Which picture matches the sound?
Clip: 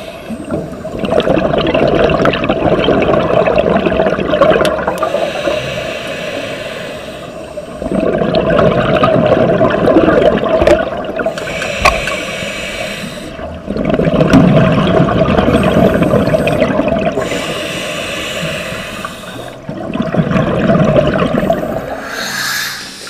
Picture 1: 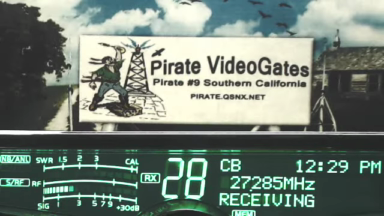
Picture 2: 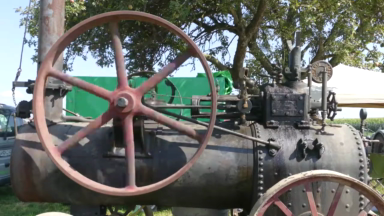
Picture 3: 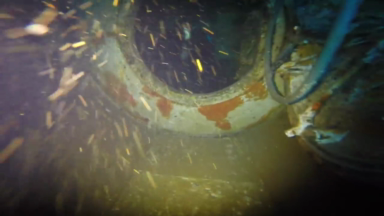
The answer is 3